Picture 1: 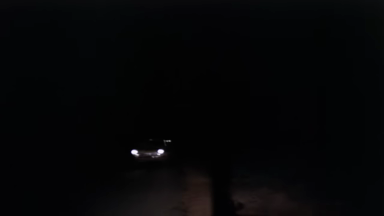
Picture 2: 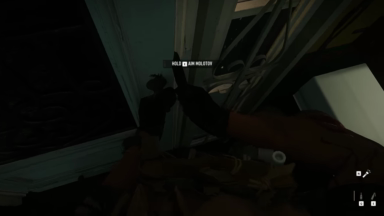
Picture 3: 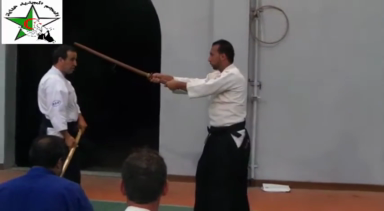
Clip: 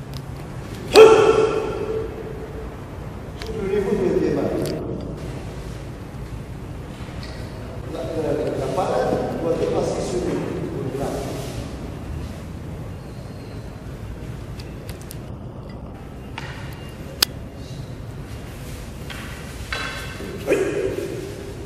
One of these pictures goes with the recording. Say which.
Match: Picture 3